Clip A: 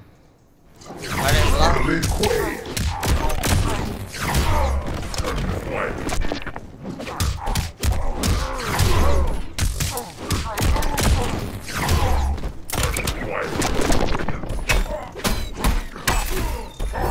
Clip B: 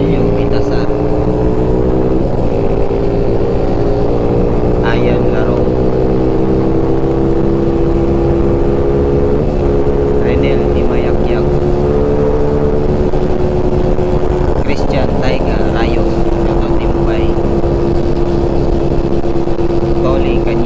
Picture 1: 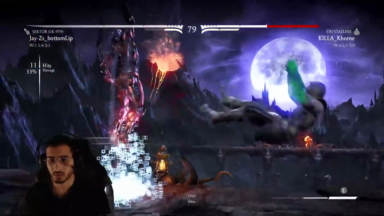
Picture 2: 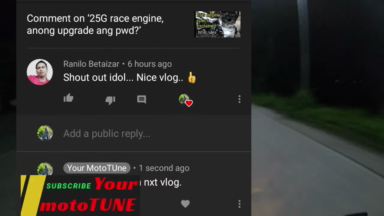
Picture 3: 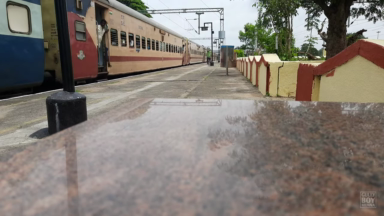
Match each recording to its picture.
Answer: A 1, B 2